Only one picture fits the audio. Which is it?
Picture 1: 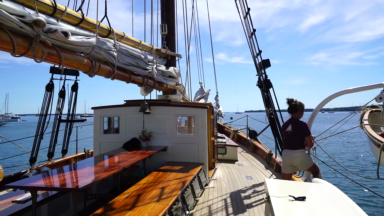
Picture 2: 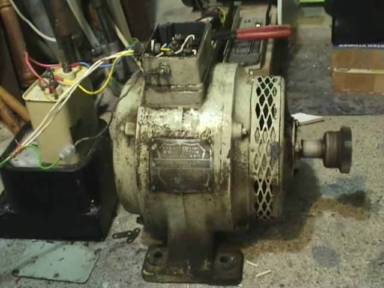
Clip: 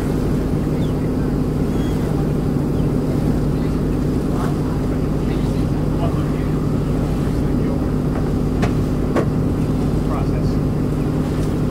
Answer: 1